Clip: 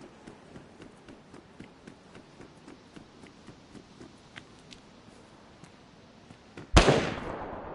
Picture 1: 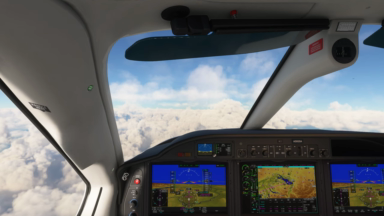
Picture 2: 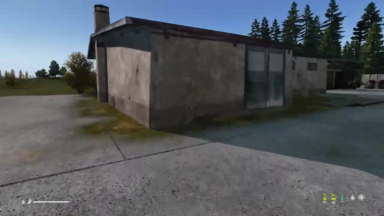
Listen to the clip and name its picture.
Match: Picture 2